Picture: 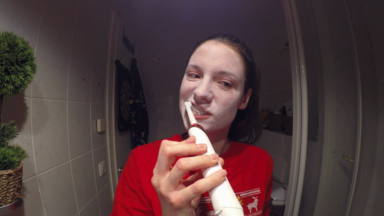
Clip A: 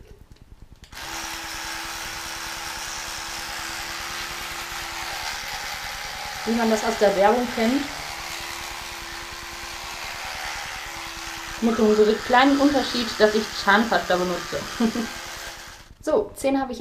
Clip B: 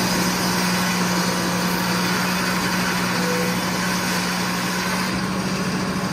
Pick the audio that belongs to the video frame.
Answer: A